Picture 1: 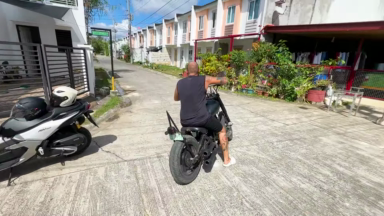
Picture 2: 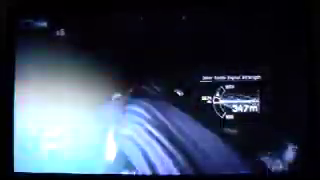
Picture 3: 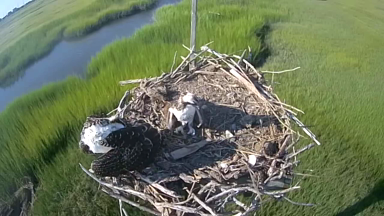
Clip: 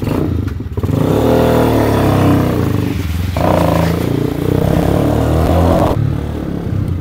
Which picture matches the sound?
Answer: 1